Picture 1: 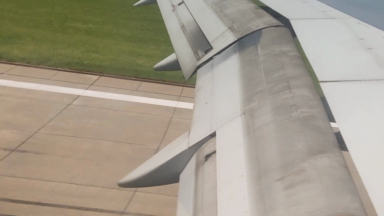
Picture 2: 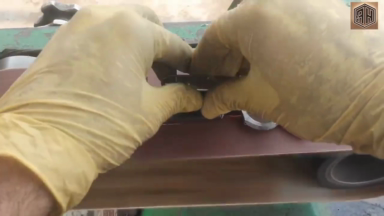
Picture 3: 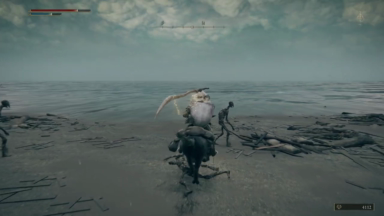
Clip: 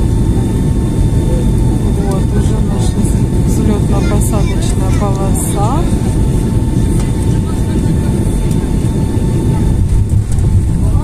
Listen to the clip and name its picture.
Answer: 1